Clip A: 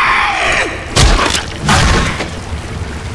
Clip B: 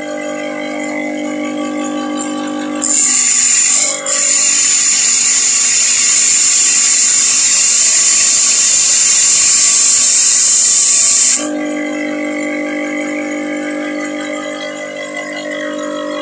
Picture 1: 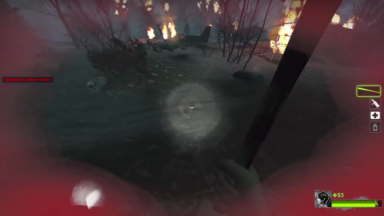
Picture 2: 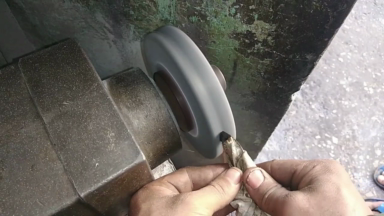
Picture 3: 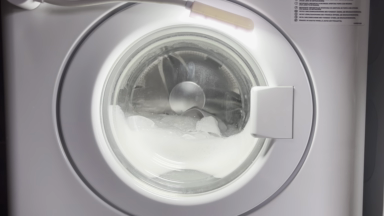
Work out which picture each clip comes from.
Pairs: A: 1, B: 2